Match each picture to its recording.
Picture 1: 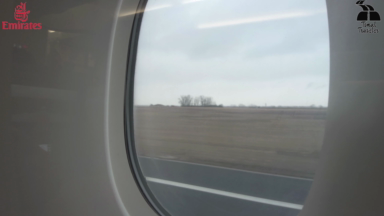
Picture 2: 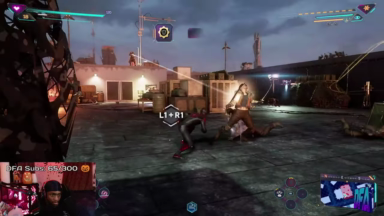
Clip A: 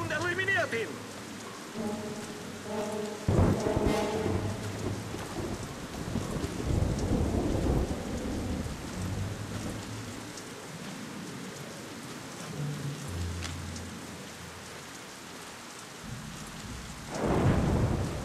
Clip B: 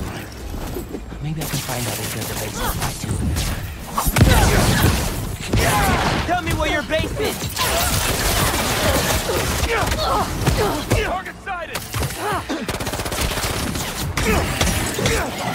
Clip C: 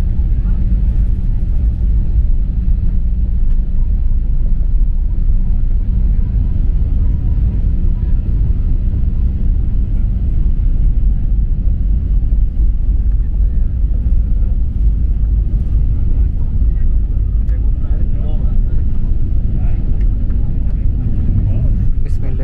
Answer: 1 C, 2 B